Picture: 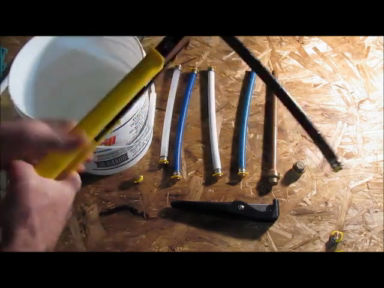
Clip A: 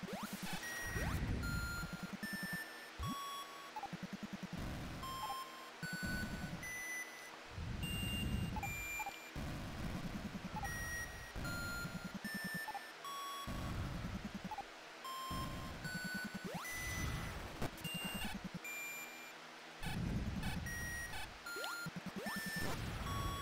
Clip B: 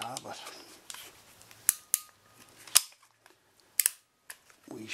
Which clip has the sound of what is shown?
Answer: B